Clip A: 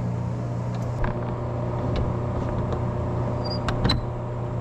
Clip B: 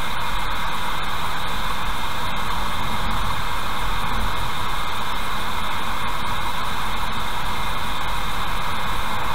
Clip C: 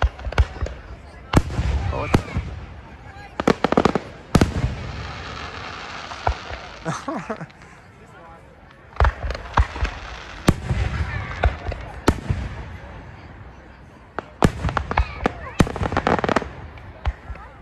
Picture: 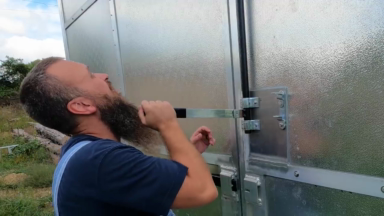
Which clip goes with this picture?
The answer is A